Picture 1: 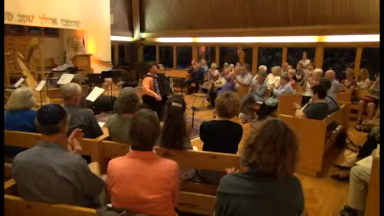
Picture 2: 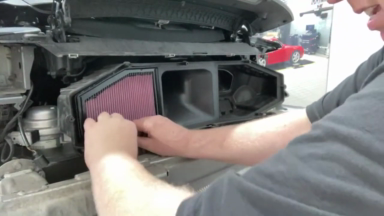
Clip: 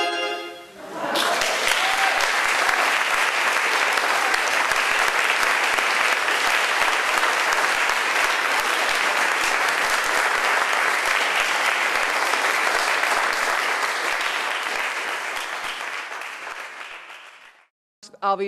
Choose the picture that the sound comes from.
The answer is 1